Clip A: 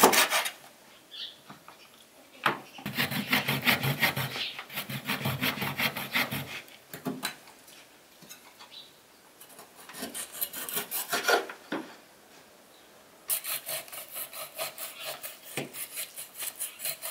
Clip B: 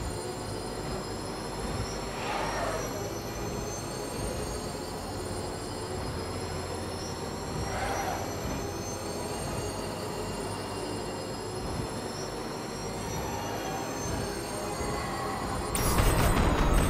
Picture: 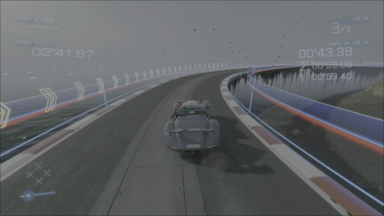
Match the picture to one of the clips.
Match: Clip B